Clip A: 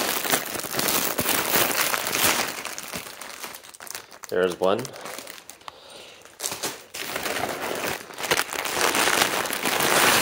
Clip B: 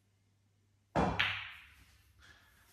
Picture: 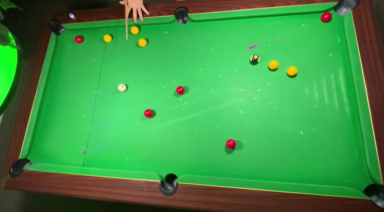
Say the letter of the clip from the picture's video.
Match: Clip B